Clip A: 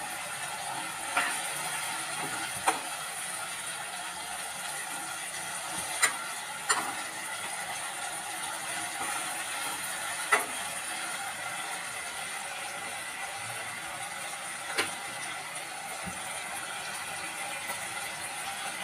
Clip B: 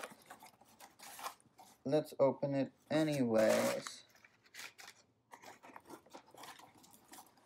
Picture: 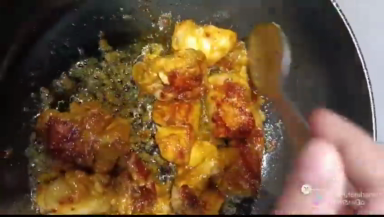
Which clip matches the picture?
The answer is A